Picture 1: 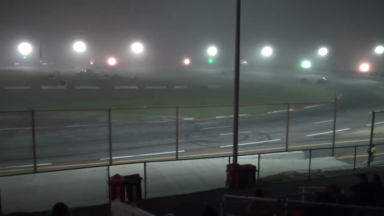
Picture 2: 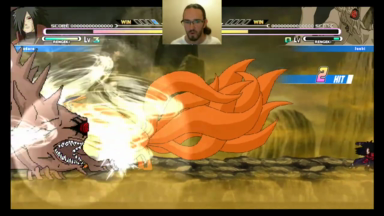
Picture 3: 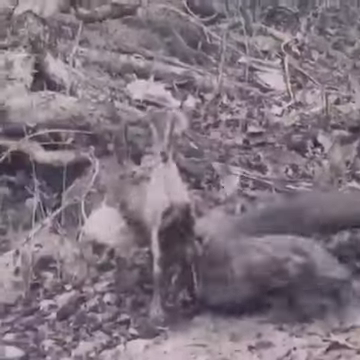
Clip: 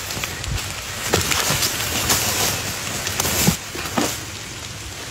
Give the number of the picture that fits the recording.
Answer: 3